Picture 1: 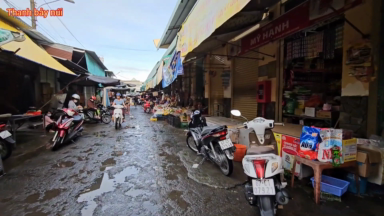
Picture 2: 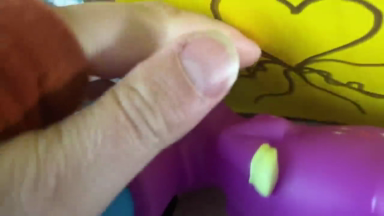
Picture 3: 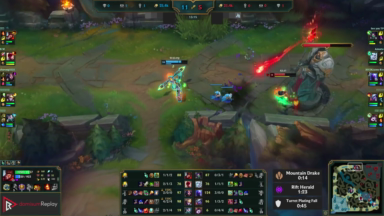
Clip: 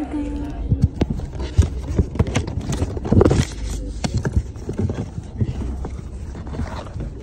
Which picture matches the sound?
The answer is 2